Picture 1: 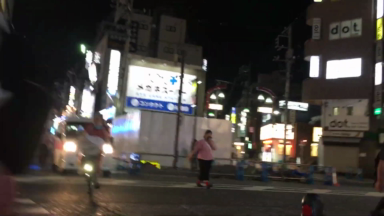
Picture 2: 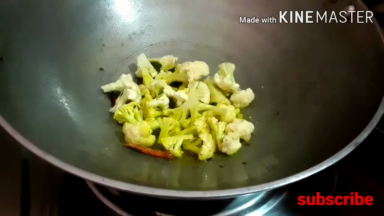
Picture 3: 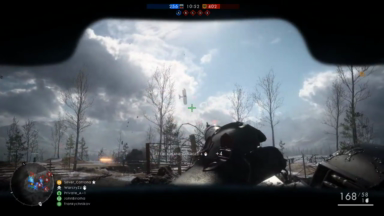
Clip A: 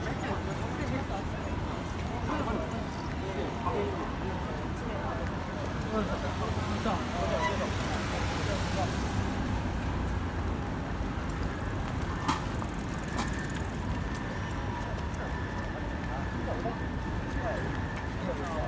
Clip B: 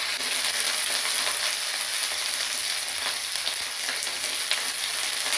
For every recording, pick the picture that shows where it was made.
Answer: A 1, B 2